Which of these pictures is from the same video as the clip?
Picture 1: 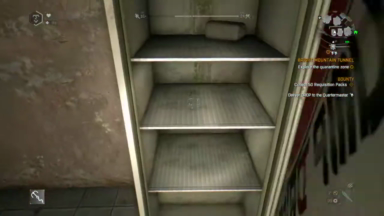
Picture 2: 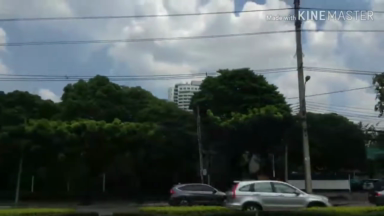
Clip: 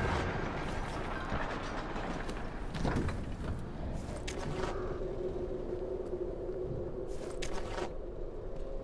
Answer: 1